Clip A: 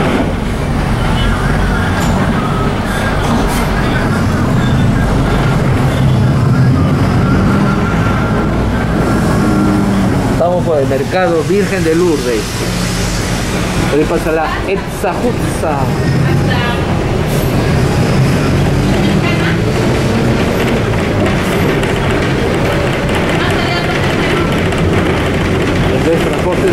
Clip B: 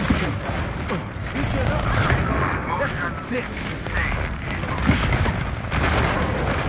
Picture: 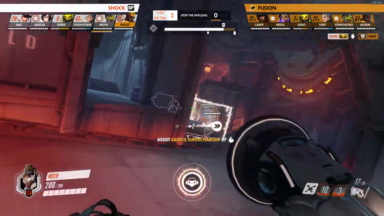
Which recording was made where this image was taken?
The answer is B